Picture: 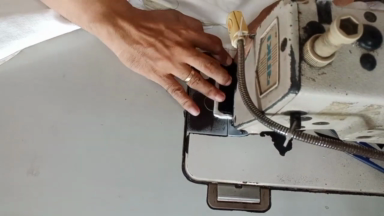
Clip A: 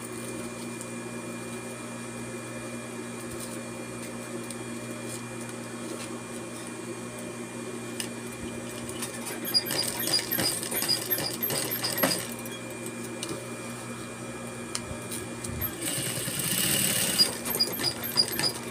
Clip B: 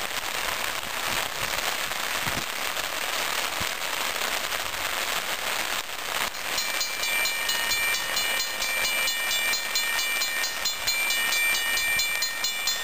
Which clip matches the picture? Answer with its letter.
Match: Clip A